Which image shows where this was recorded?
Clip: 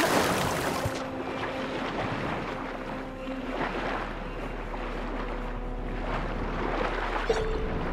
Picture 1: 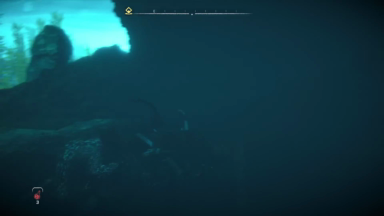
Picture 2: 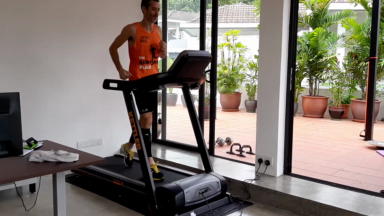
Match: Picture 1